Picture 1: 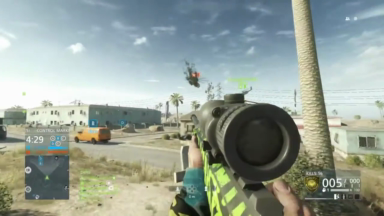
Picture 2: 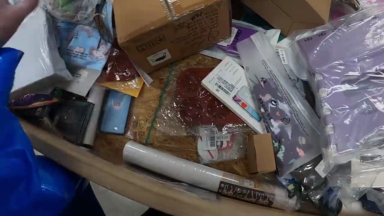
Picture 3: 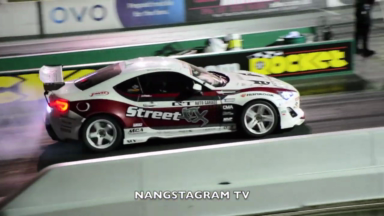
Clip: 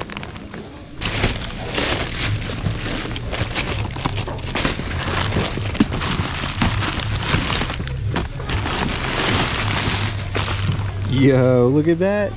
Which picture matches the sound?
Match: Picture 2